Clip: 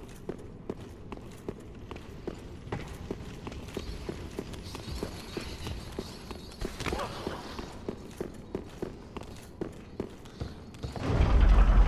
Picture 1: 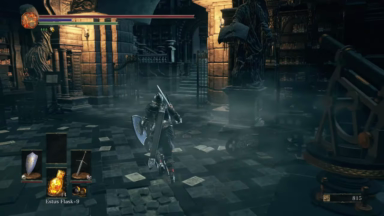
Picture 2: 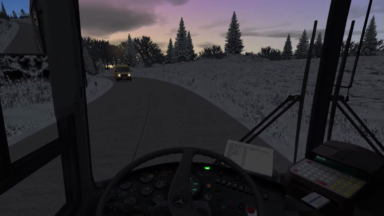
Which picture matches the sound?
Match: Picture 1